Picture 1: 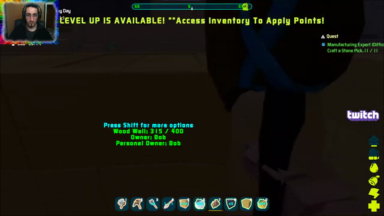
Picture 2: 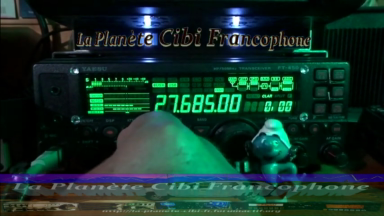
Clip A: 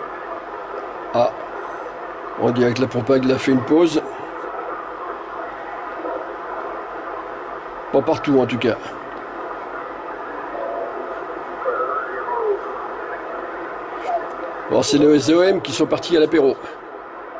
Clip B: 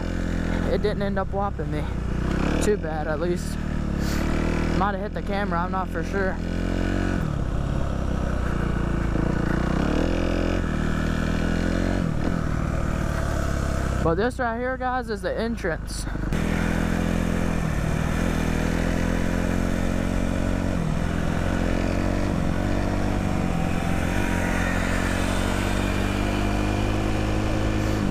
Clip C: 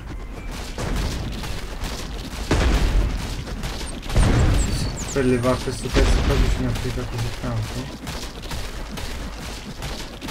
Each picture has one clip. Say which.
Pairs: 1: C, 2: A